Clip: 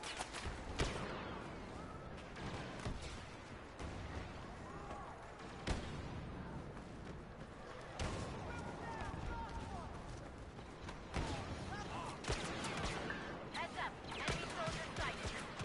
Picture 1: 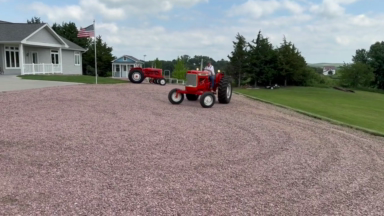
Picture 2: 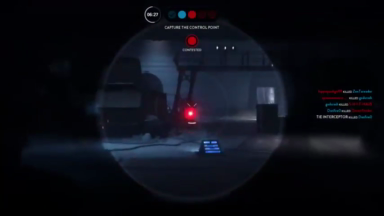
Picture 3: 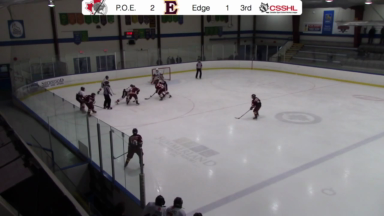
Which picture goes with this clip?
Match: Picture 2